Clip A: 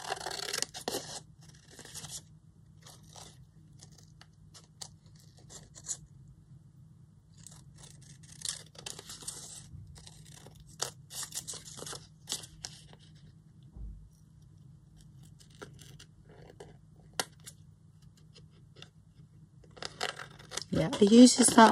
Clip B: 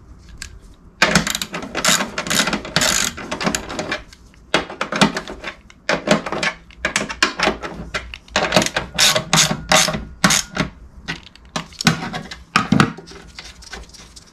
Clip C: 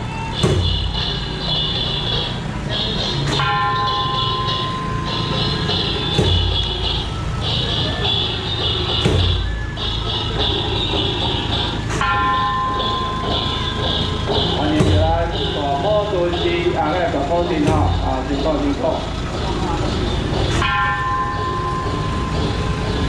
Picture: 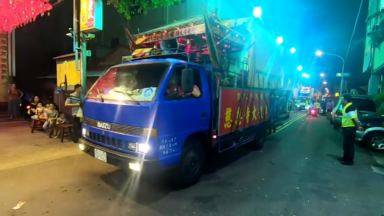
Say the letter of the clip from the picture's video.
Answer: C